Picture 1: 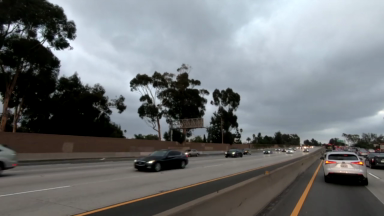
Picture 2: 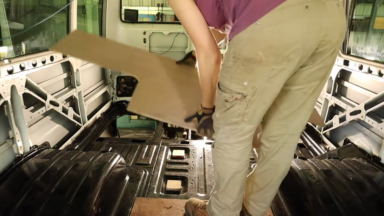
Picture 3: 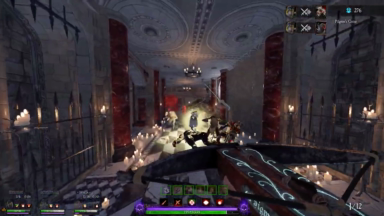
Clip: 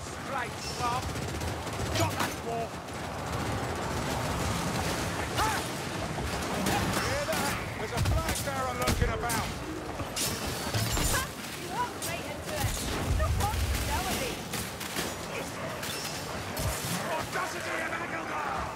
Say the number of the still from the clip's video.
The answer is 3